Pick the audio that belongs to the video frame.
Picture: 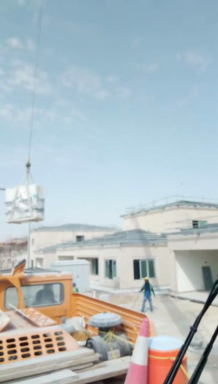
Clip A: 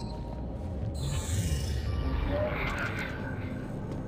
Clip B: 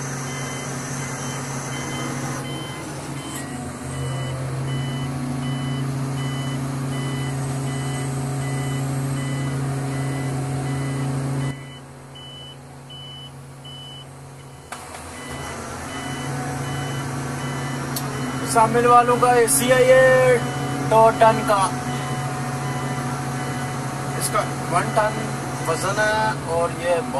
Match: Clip B